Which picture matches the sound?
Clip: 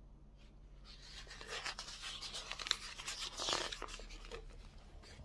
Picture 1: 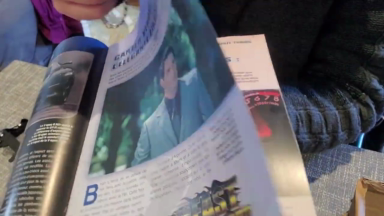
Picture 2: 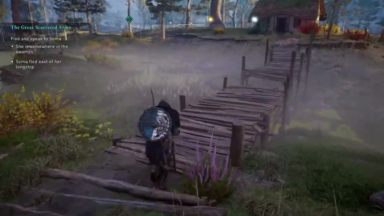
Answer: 1